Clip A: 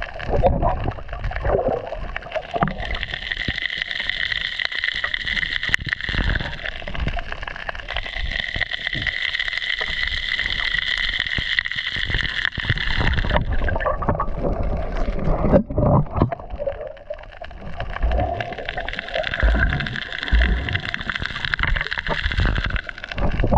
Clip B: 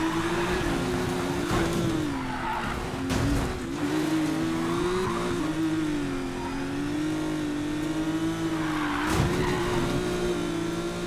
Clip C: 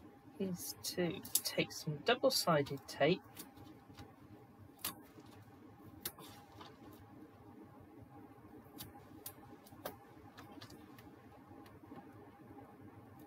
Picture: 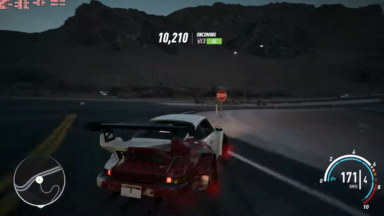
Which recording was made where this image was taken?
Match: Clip B